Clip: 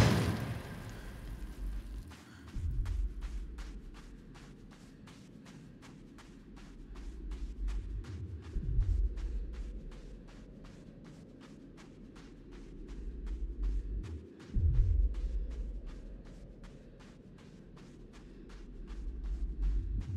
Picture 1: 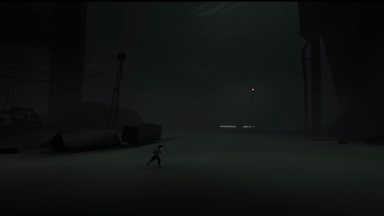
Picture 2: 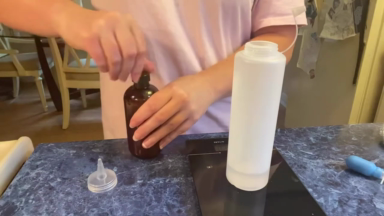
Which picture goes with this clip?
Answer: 1